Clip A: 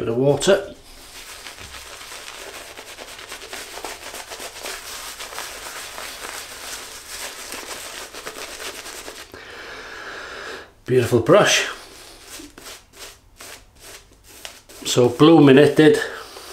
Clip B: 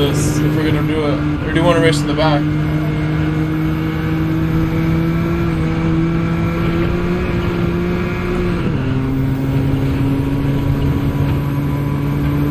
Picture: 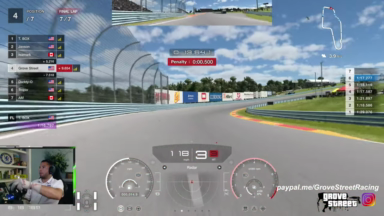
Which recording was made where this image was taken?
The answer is B